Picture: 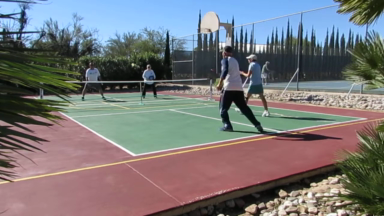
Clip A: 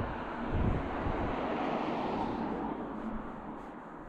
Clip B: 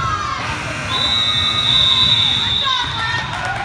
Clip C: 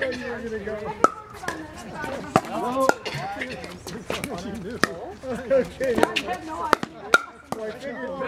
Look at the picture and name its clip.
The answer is C